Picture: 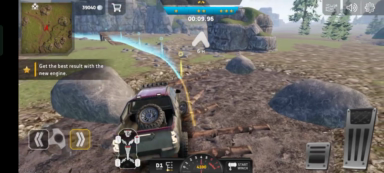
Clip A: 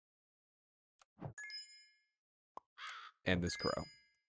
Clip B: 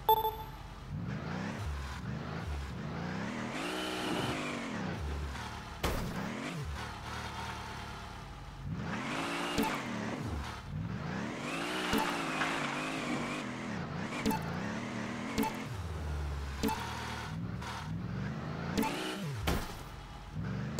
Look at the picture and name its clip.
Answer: B